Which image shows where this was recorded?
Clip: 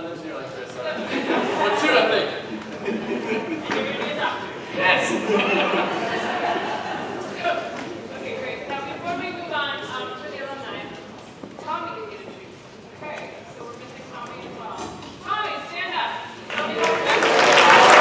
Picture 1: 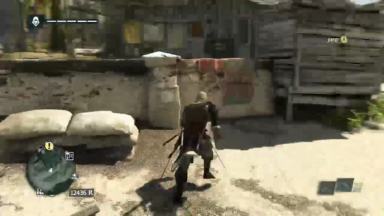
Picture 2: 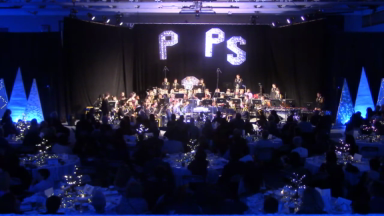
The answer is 2